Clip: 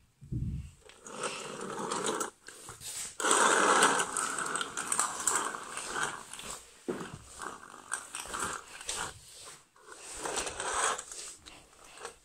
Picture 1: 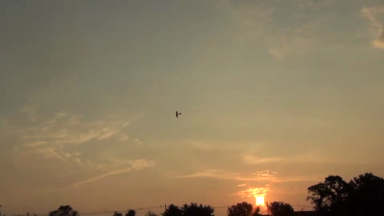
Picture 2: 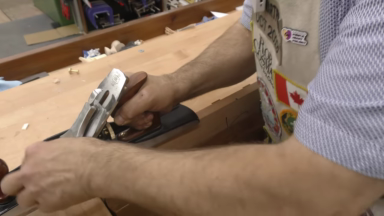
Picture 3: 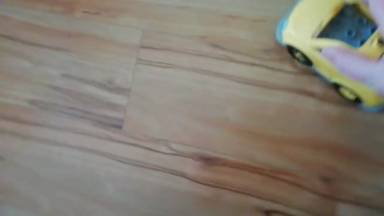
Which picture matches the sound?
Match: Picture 3